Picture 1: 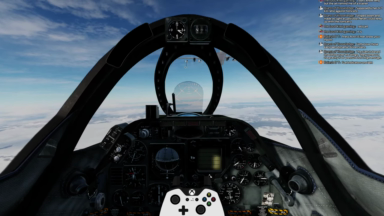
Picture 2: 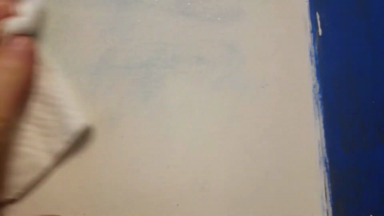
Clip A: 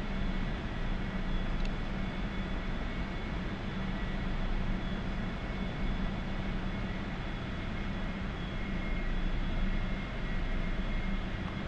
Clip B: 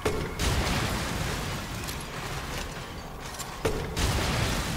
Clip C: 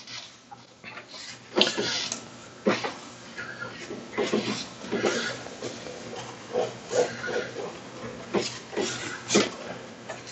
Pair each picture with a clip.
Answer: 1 A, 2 C